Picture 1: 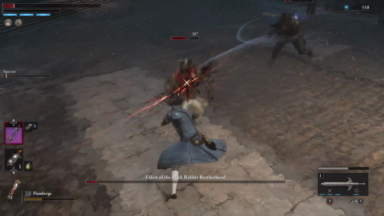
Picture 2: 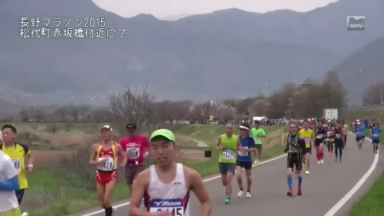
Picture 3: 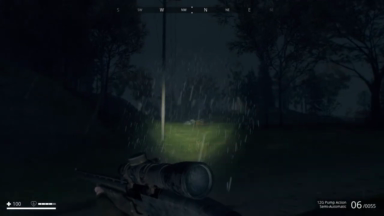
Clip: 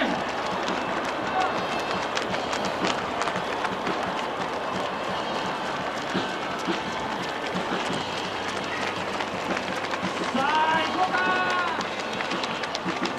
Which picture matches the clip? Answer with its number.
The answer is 2